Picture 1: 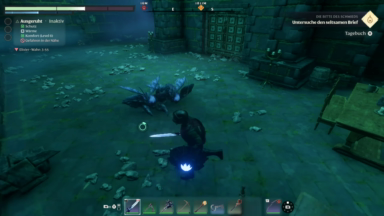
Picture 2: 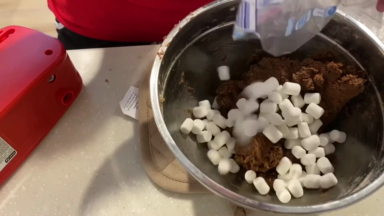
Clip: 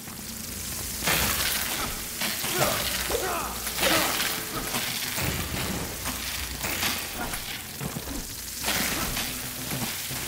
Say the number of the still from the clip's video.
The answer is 1